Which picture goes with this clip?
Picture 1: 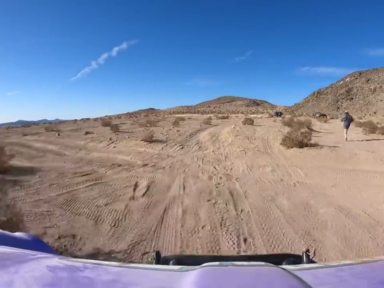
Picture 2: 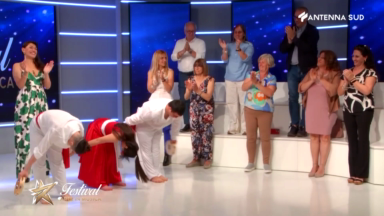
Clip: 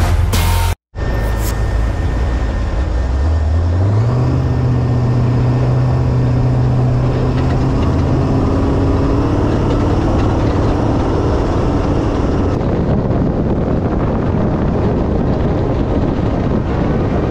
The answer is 1